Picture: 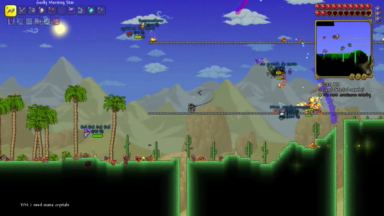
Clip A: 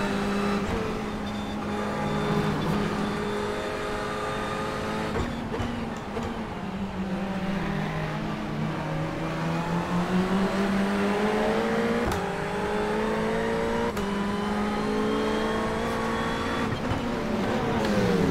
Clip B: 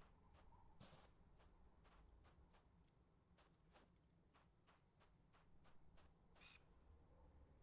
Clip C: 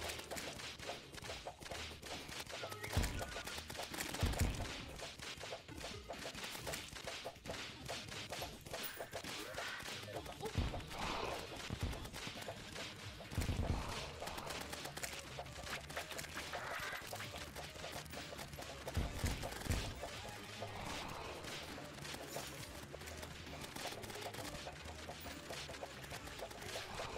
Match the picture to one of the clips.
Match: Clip C